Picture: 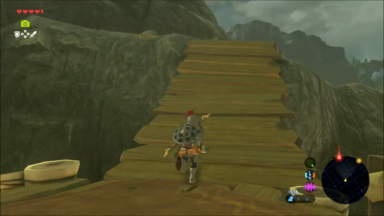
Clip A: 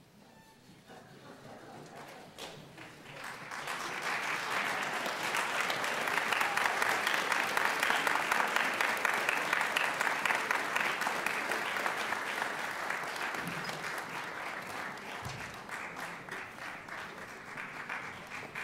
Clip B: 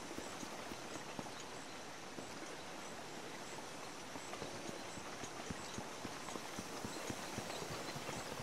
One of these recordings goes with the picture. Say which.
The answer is B